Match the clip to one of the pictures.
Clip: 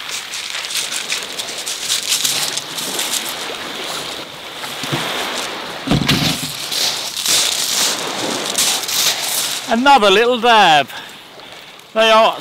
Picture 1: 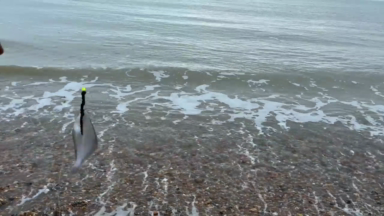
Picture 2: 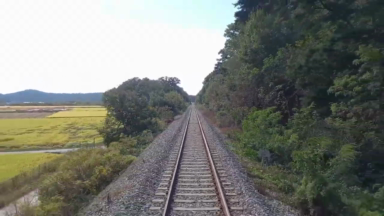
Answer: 1